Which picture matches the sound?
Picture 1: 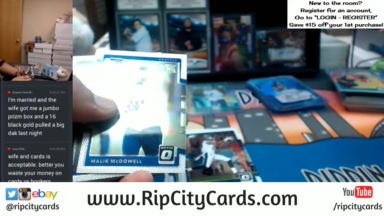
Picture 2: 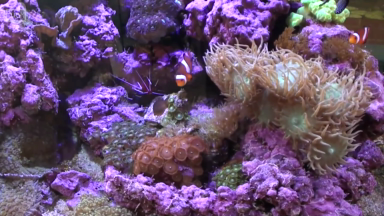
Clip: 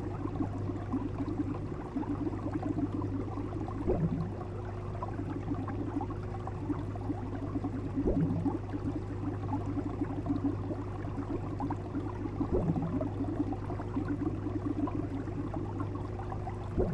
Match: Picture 2